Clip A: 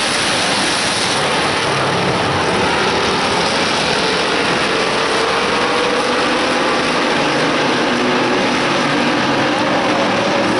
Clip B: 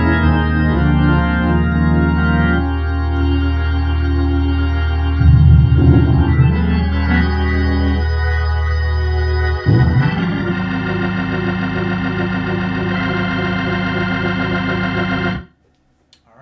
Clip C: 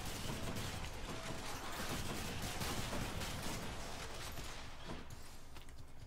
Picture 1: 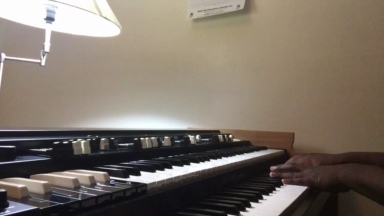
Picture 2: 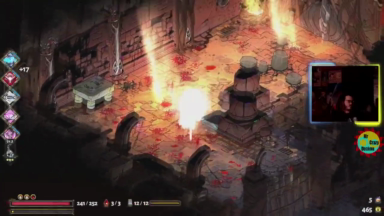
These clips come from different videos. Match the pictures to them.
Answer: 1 B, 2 C